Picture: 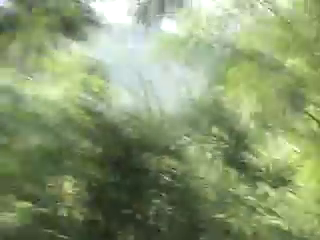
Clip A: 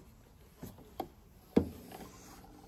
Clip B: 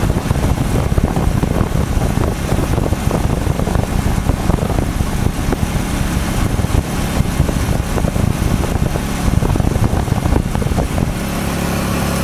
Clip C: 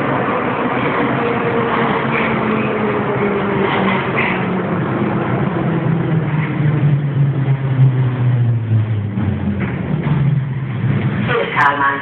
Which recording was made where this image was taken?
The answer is B